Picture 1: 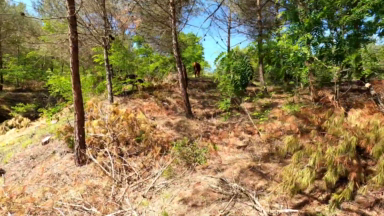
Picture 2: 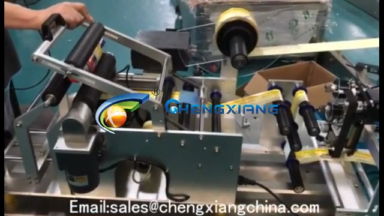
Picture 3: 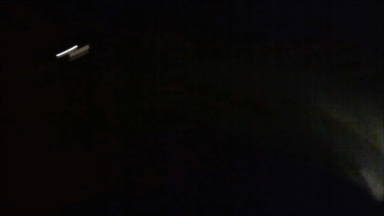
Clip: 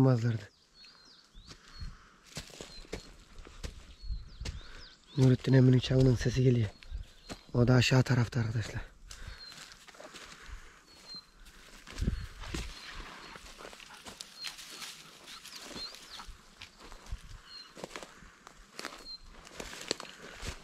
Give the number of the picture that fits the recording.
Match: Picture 1